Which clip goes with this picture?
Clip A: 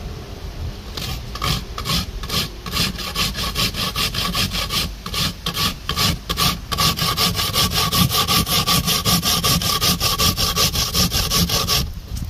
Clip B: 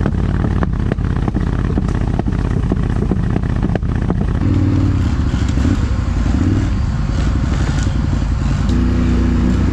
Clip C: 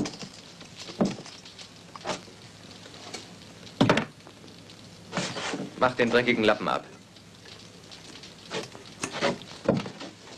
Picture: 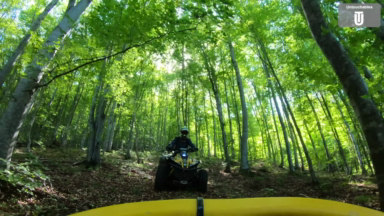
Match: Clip B